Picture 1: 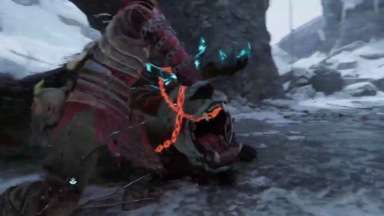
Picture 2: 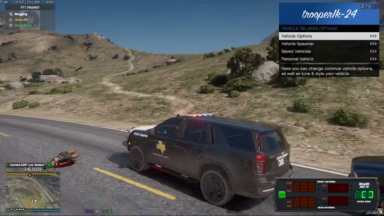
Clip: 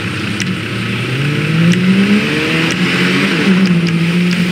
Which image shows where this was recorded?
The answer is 2